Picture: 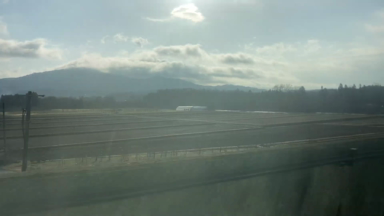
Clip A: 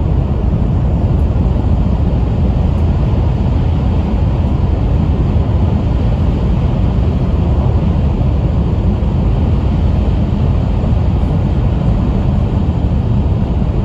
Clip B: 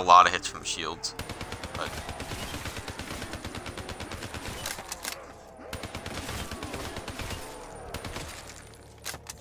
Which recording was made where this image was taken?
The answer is A